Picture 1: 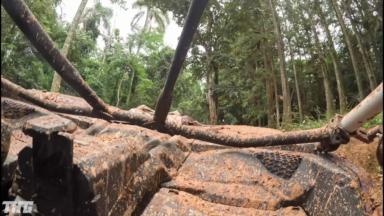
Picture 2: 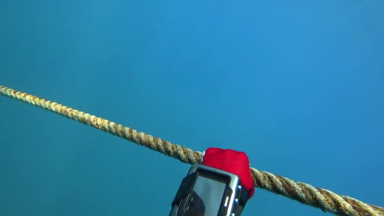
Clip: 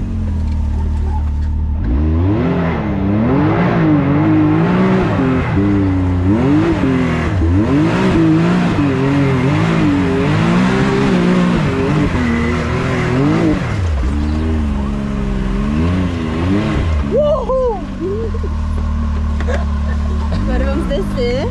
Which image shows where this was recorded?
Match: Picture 1